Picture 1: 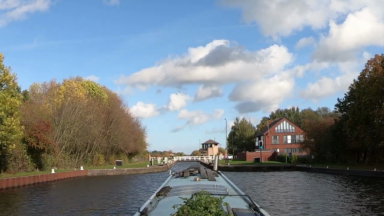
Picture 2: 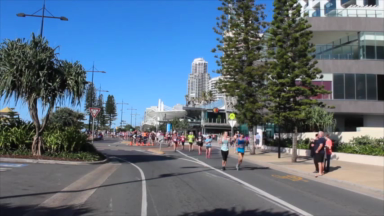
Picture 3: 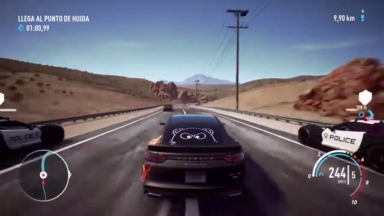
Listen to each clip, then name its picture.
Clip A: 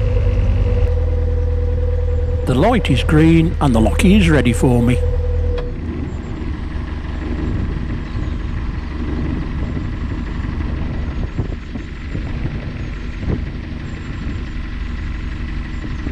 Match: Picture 1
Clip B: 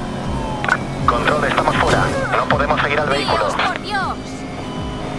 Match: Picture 3